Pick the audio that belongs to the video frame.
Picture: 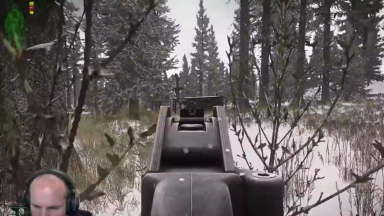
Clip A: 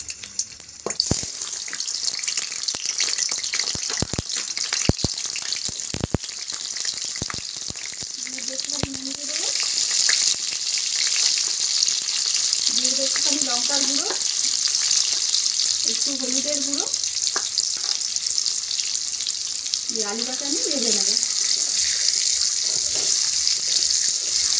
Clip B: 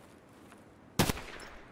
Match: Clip B